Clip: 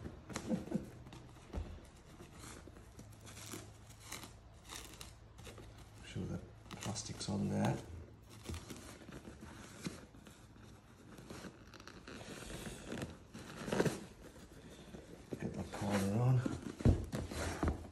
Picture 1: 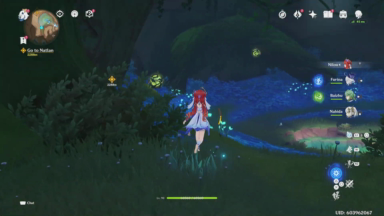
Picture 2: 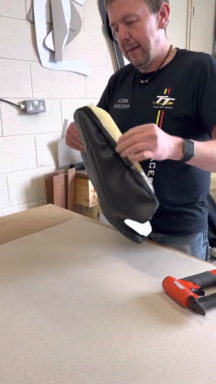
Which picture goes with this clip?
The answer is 2